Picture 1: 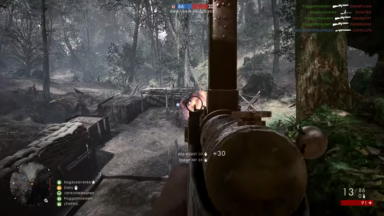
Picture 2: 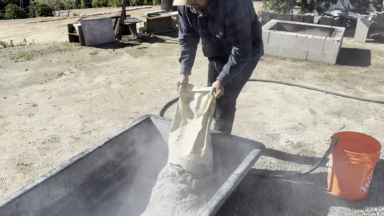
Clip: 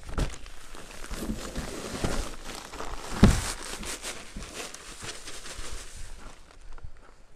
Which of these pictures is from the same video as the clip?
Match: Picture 2